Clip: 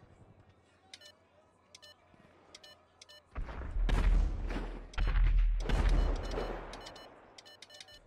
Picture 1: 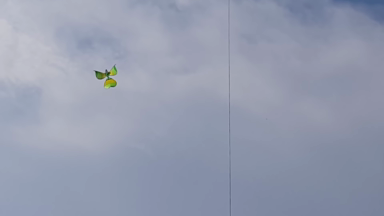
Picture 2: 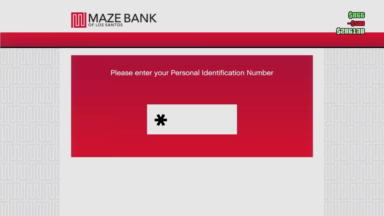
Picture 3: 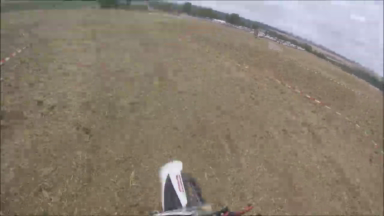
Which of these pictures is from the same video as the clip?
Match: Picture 2